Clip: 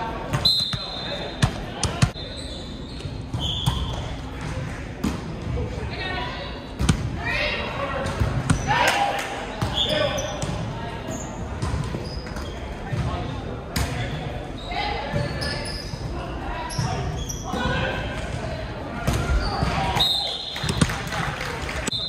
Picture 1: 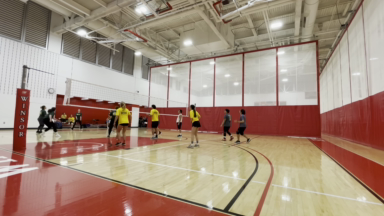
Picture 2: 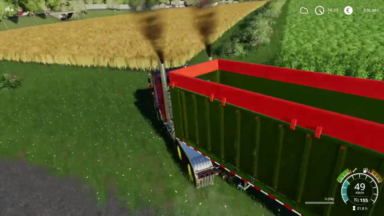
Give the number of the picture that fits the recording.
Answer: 1